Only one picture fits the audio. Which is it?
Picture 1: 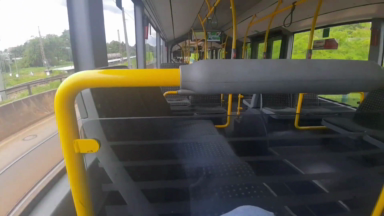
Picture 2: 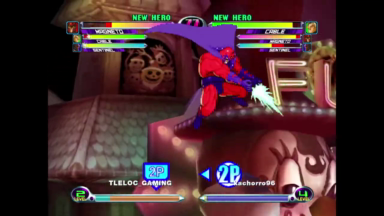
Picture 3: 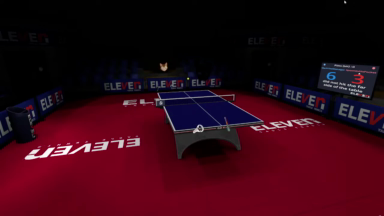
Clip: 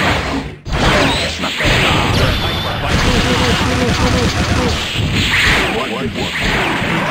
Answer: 2